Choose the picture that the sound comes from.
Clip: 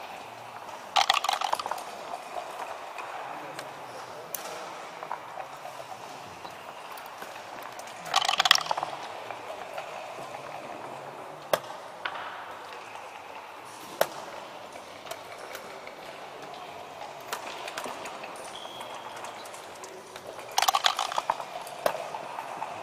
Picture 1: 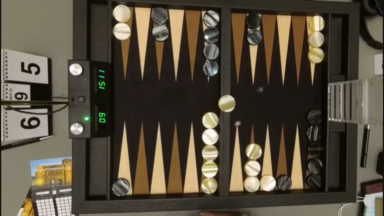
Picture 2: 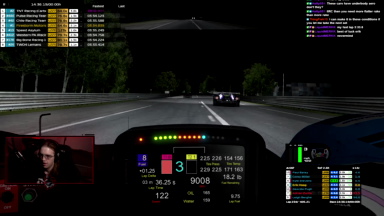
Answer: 1